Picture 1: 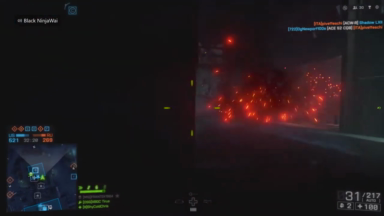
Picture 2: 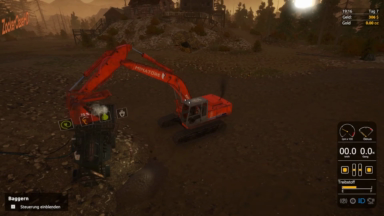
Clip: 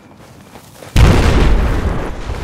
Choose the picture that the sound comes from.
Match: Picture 1